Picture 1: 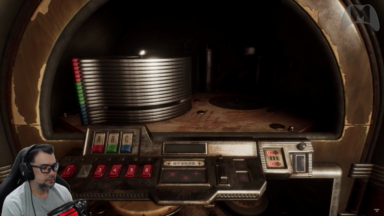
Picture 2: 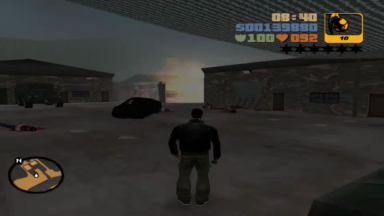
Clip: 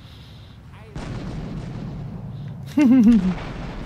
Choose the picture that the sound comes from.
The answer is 2